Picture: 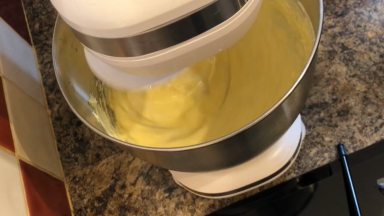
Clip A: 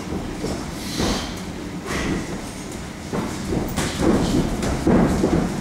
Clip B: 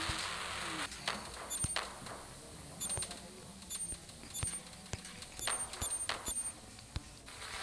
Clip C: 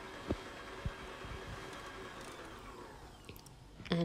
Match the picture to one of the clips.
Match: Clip C